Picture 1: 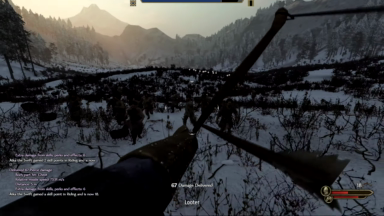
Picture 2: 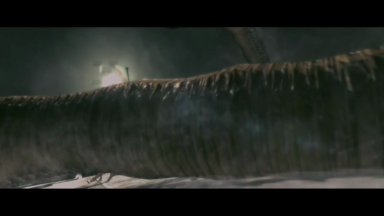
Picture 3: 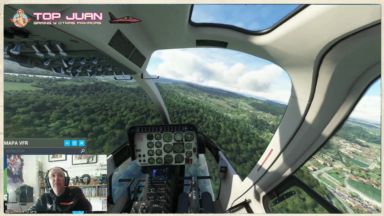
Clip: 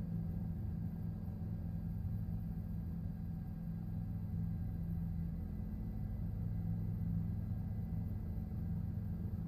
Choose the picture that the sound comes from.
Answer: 3